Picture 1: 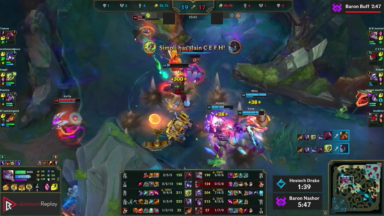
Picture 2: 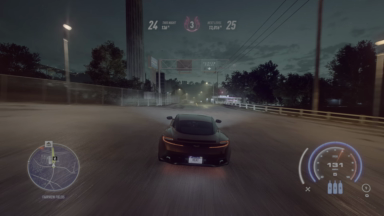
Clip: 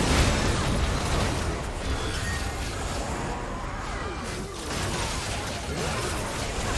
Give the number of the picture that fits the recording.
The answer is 1